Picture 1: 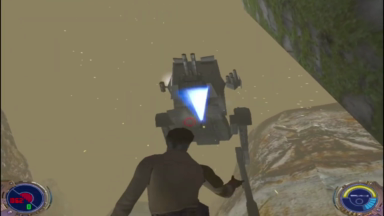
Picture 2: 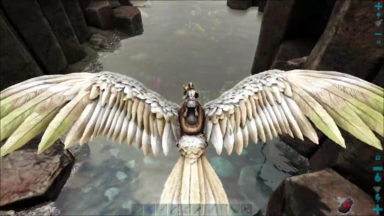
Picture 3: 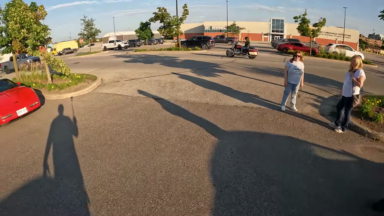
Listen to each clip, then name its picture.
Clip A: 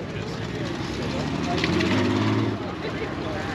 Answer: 3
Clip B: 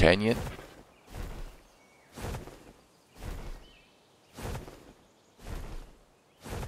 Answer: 2